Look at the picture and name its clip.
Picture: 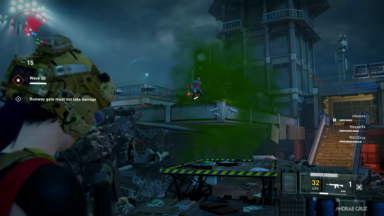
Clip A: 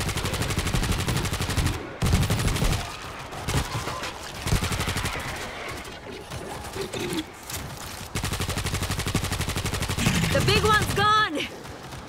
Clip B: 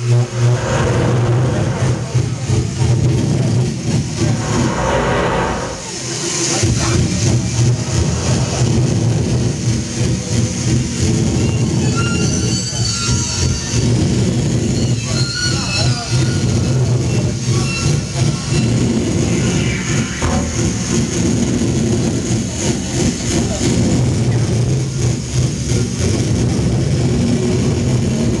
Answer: A